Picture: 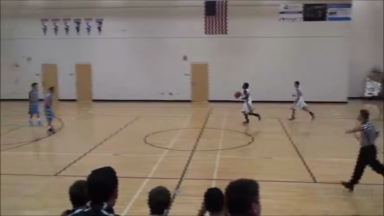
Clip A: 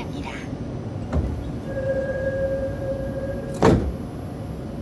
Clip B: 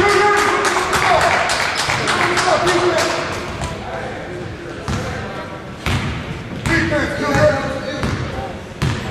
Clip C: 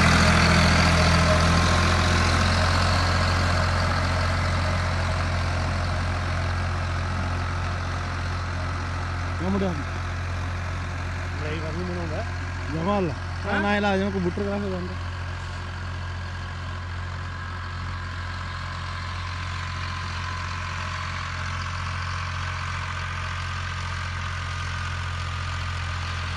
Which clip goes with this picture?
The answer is B